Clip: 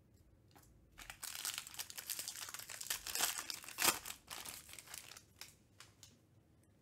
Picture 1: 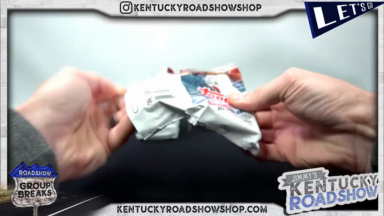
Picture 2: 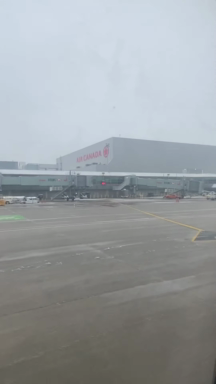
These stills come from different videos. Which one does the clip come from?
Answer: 1